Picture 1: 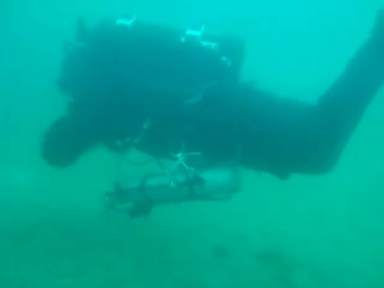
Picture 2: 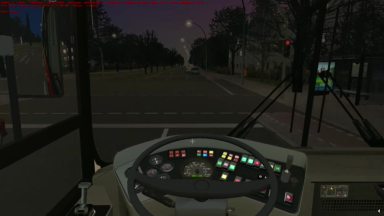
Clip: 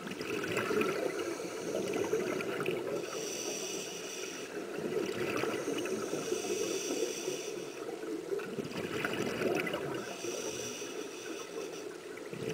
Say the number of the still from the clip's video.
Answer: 1